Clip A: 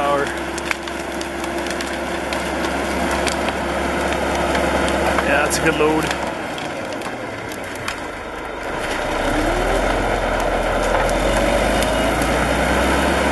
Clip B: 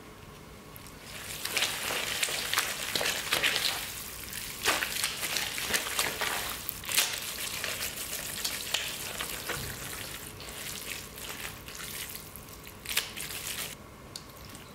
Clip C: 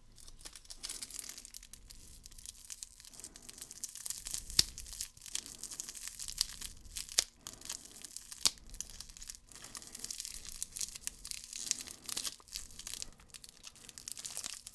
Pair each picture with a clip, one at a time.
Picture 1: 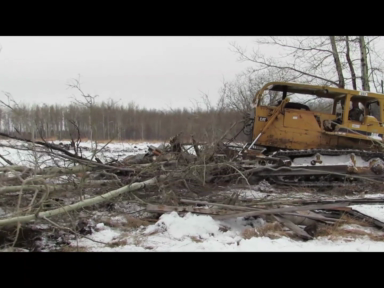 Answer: A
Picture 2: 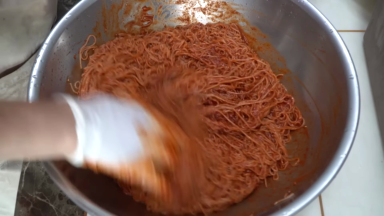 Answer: B